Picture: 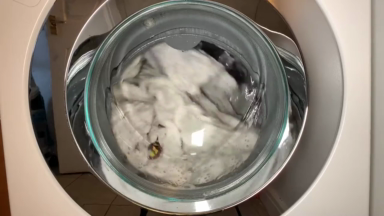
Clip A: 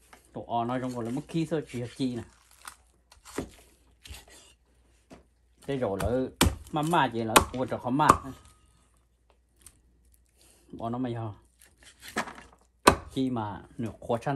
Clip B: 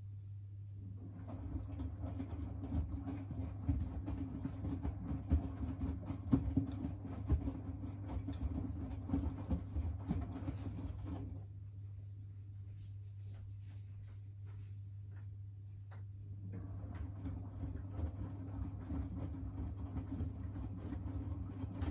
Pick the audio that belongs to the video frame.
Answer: B